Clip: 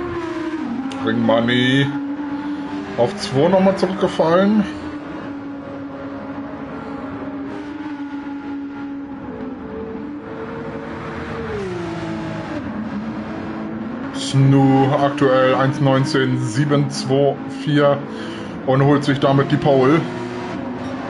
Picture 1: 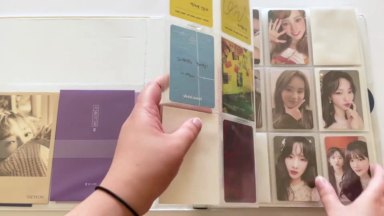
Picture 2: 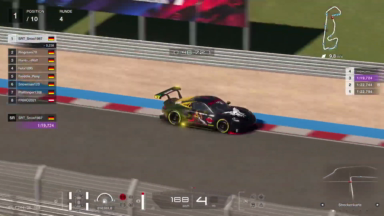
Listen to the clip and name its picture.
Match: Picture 2